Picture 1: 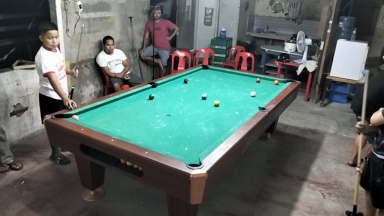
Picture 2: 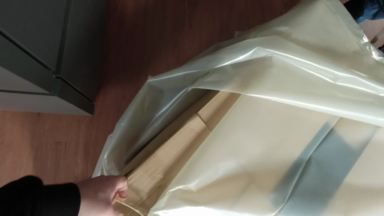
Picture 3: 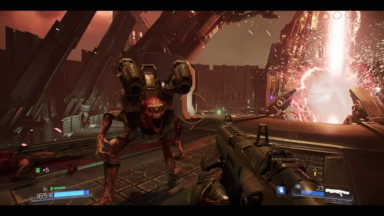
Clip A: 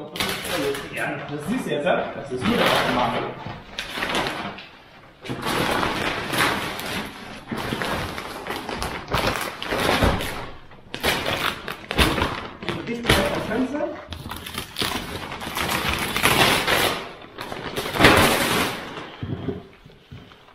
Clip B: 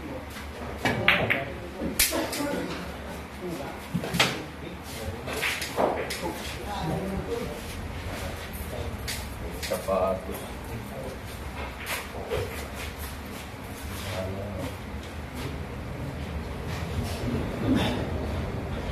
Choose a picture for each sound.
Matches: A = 2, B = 1